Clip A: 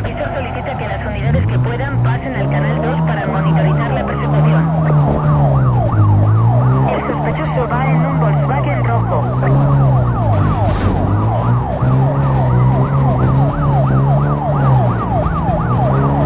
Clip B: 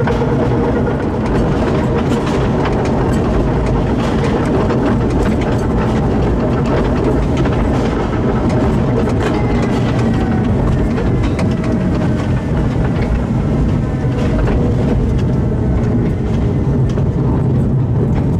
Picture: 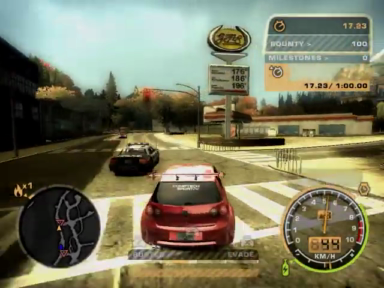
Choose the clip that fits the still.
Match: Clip A